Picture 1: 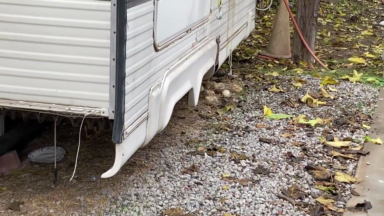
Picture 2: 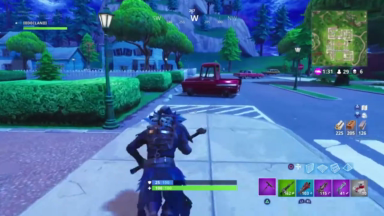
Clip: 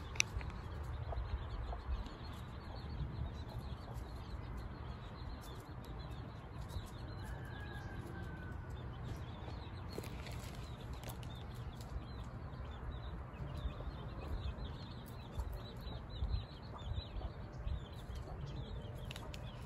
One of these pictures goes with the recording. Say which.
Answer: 1